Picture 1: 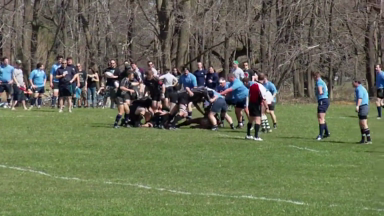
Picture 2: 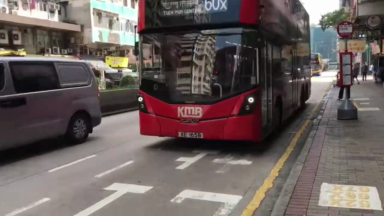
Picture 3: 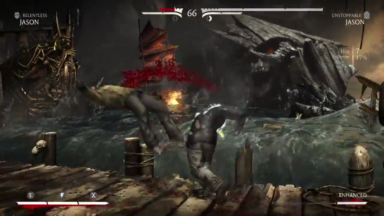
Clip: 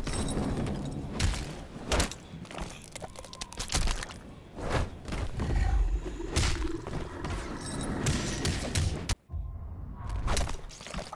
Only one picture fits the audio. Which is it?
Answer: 3